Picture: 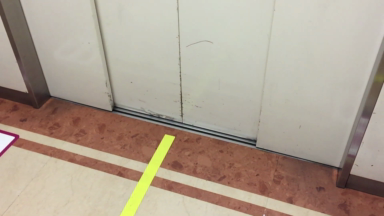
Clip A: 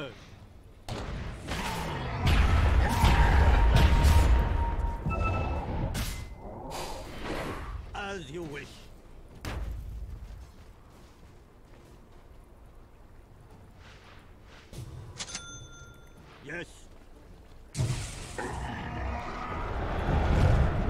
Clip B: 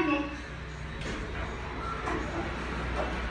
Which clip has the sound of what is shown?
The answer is B